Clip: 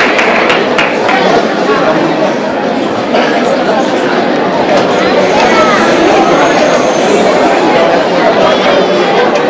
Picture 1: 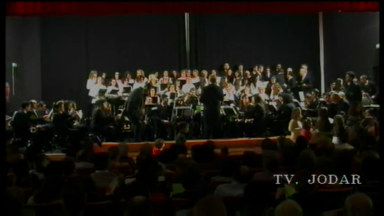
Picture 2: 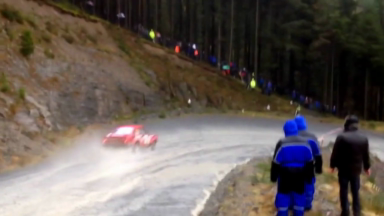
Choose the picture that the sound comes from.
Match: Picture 1